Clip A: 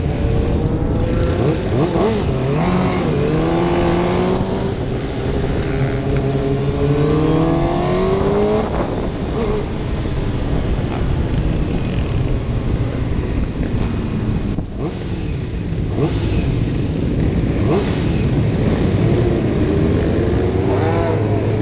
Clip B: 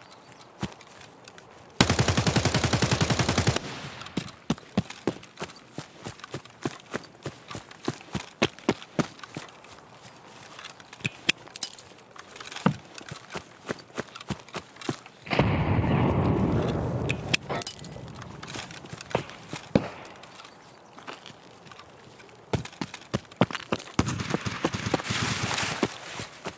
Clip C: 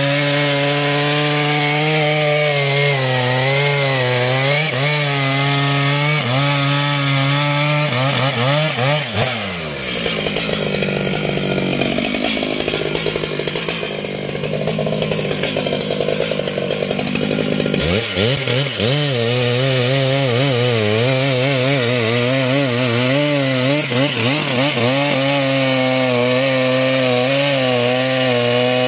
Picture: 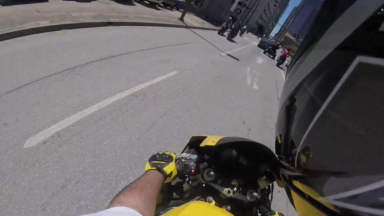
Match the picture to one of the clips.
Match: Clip A